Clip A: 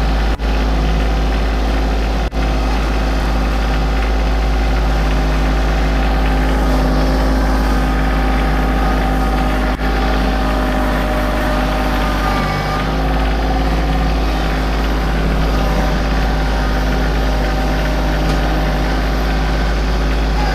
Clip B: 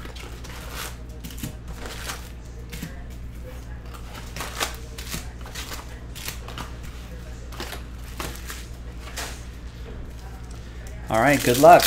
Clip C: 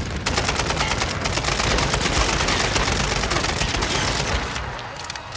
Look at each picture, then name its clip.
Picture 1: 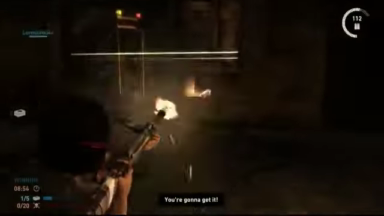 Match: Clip C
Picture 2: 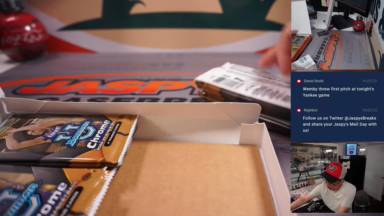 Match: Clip B